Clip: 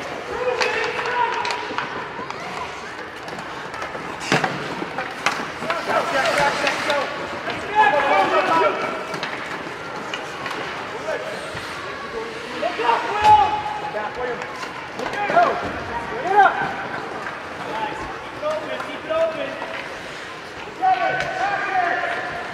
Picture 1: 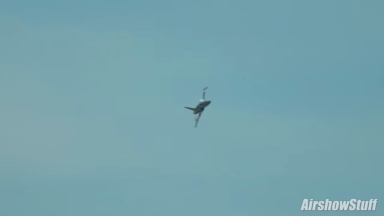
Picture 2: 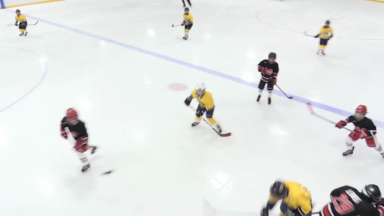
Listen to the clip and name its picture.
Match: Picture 2